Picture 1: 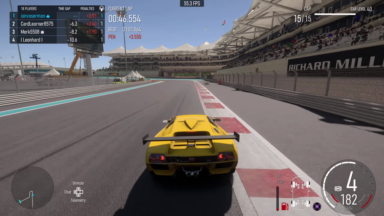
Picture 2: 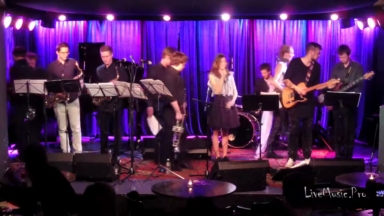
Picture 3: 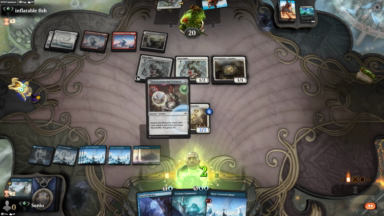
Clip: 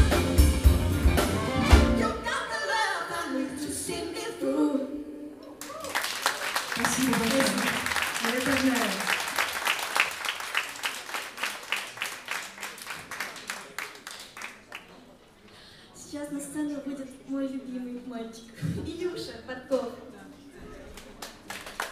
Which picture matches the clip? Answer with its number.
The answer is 2